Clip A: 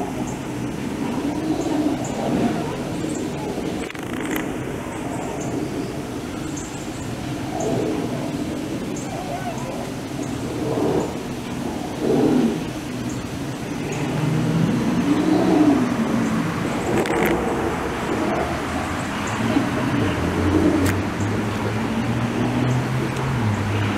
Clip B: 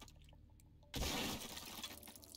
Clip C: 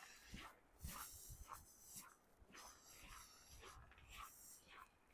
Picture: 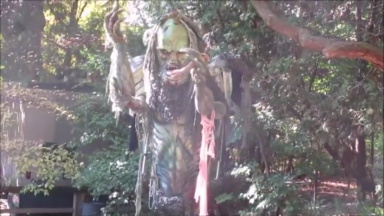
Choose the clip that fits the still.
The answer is A